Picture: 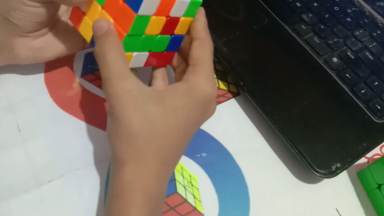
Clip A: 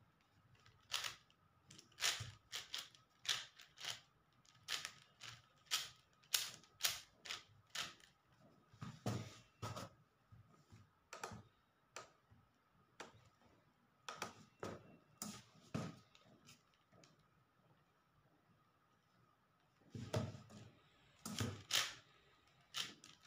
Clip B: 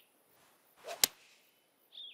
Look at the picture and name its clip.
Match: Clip A